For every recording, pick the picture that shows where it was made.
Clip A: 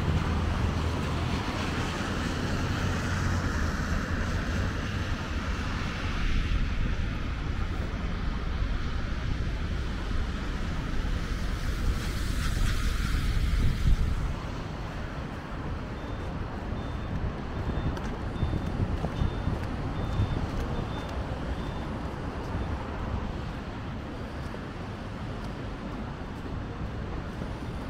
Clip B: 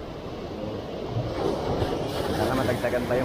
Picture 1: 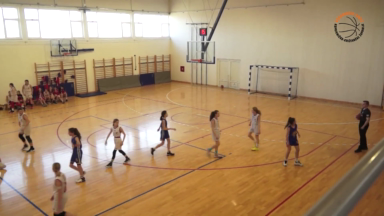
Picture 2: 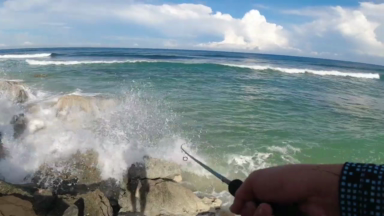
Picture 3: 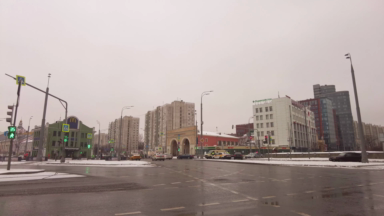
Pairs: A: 3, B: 2